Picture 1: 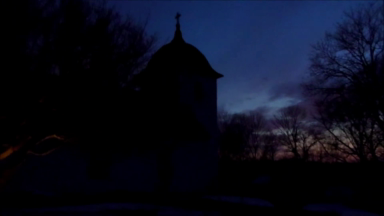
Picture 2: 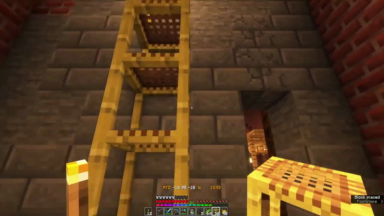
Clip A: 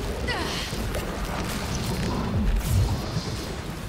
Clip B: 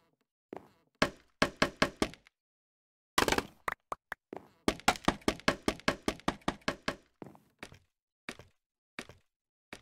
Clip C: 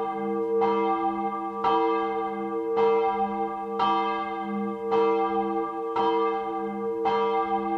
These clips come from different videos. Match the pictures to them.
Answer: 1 C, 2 B